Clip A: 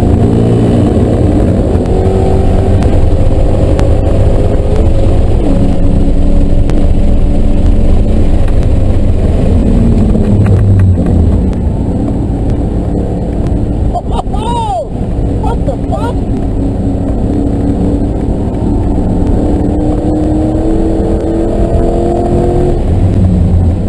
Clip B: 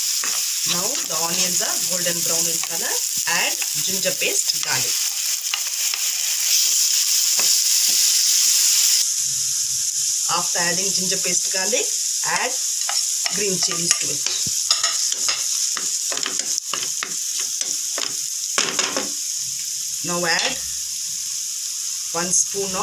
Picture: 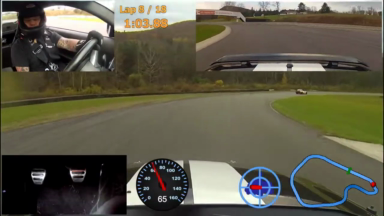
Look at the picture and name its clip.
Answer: A